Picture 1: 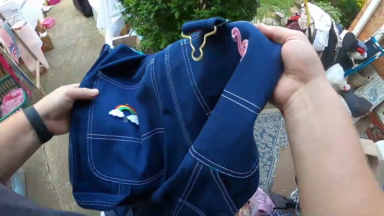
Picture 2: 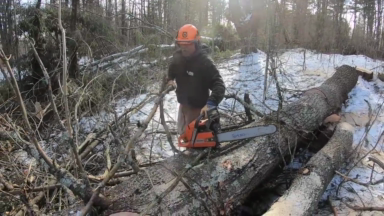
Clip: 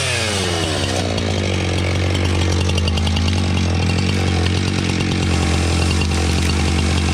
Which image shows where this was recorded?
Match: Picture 2